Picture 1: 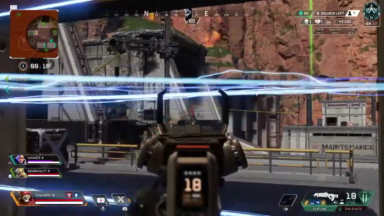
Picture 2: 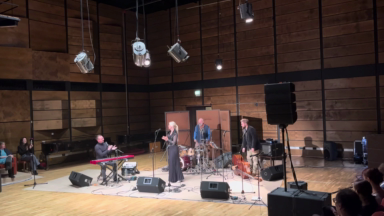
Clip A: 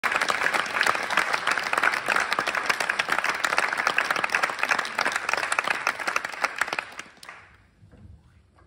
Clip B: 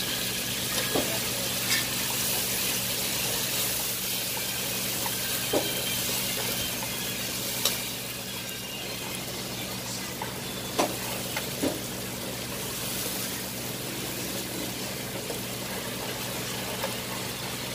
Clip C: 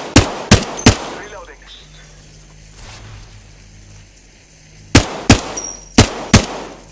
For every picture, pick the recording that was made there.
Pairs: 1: C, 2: A